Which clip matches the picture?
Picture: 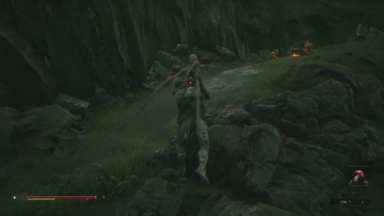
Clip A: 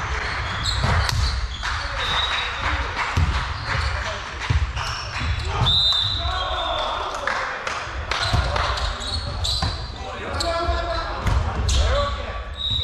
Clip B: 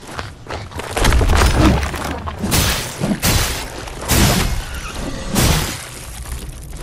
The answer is B